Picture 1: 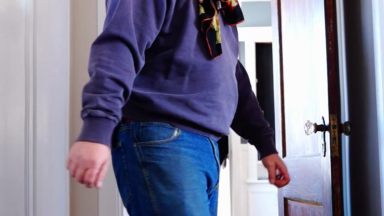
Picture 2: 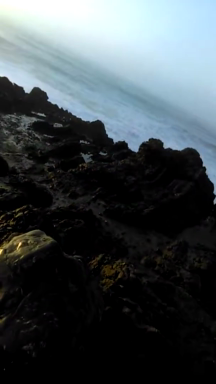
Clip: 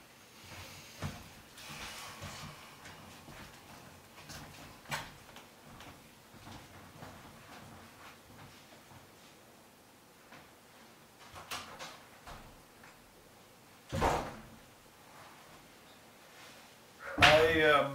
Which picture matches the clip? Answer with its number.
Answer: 1